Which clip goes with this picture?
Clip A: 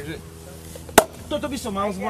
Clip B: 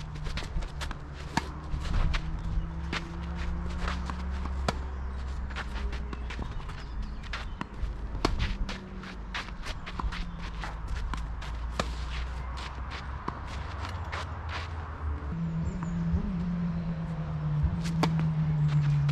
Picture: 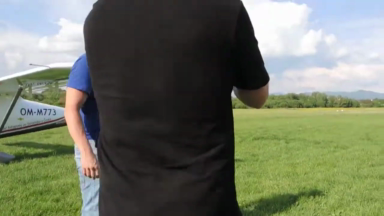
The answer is A